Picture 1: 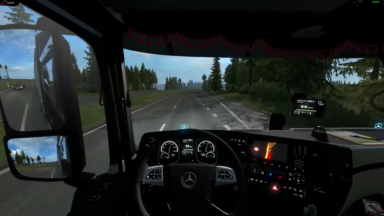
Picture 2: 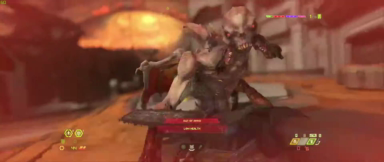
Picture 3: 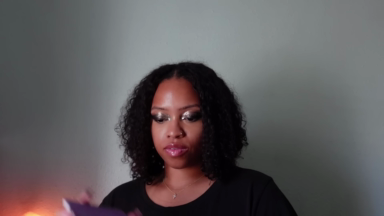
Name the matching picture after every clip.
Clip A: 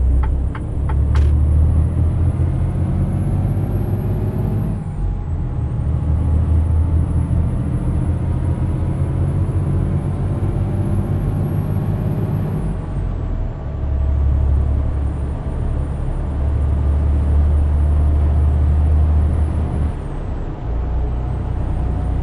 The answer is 1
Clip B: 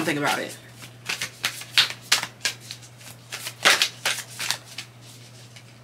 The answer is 3